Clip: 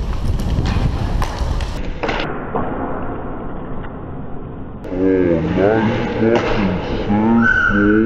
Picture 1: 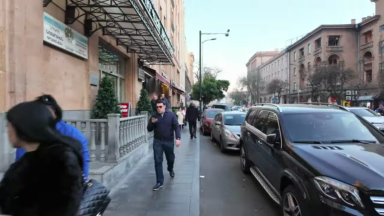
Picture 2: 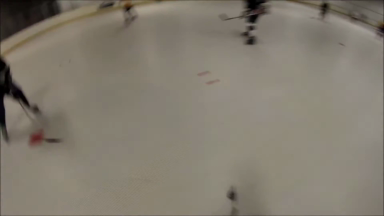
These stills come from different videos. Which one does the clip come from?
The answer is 2